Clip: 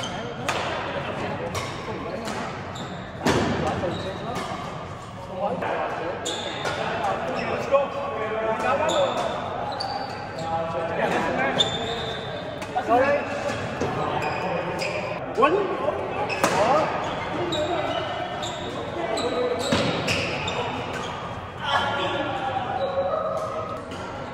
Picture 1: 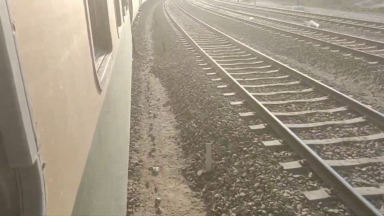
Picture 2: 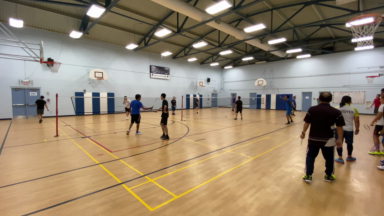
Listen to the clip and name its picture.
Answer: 2